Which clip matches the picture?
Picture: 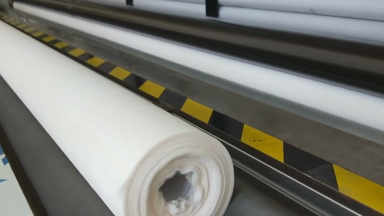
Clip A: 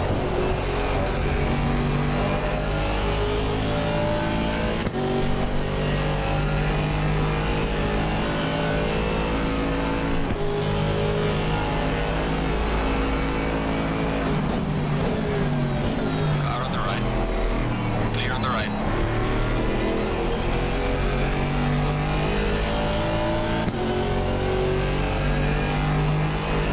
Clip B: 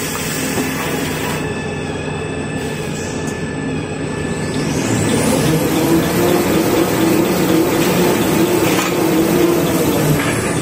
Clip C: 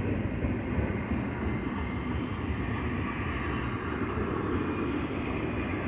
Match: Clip B